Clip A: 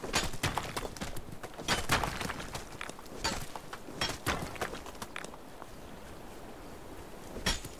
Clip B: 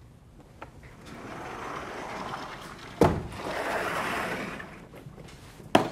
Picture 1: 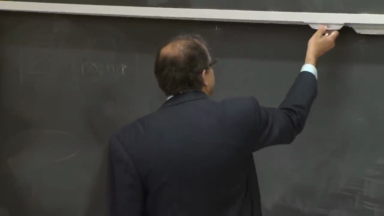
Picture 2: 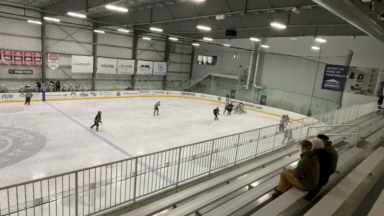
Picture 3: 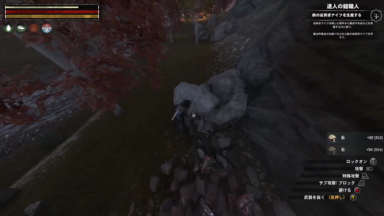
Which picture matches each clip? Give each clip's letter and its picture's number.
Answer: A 3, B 1